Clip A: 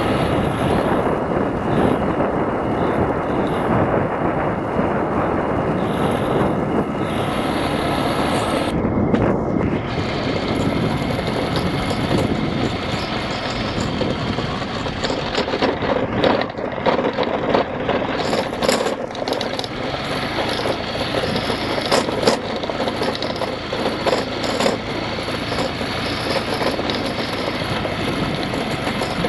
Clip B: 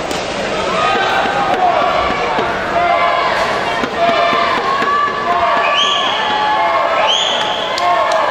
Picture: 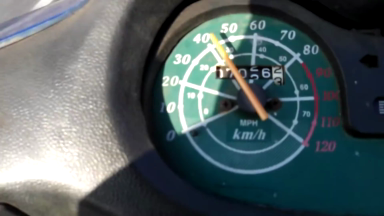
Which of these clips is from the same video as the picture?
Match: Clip A